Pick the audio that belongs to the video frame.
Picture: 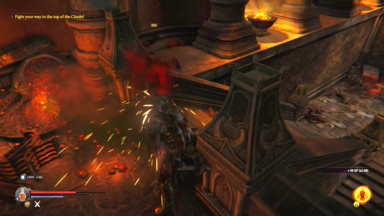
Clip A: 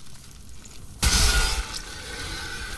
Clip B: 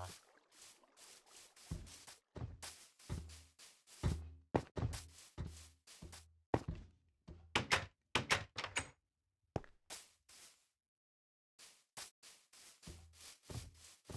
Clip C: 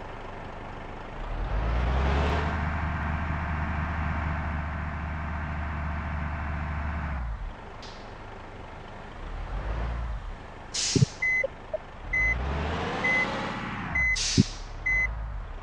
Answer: A